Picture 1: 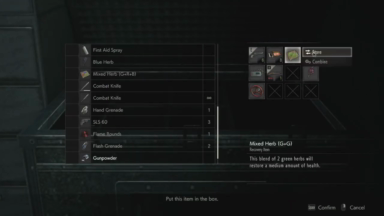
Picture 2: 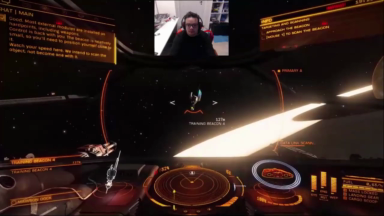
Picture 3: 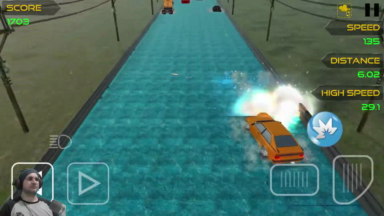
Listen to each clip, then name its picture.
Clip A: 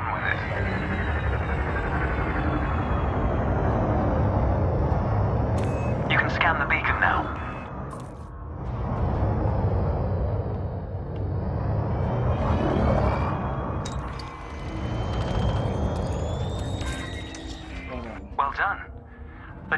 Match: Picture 2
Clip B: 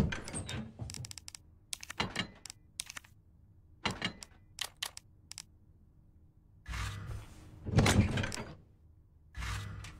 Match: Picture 1